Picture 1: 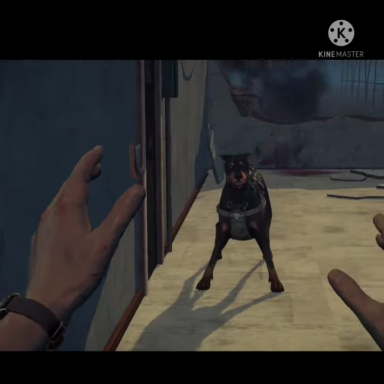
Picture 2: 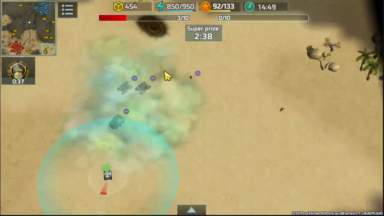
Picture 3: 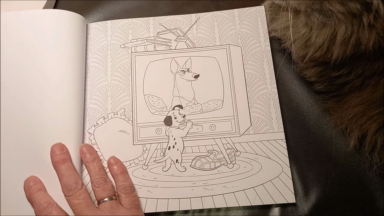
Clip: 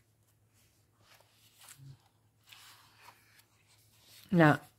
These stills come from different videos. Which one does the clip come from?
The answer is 3